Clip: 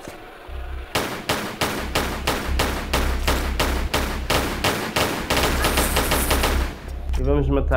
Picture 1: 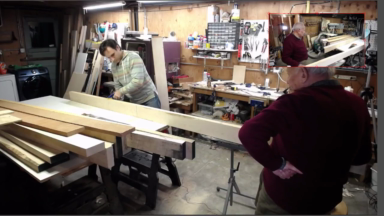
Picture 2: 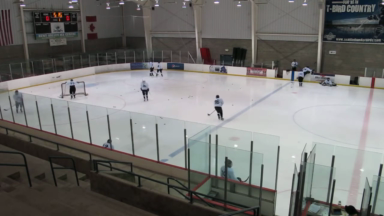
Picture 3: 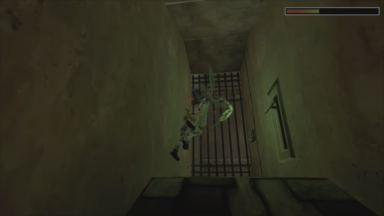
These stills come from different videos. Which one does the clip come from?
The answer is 3